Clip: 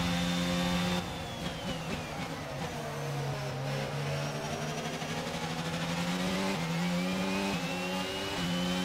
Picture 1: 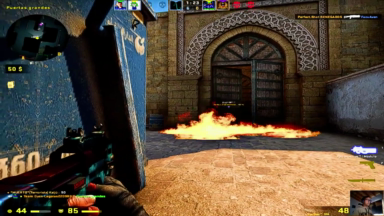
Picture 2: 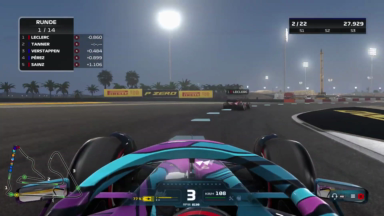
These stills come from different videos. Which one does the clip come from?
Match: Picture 2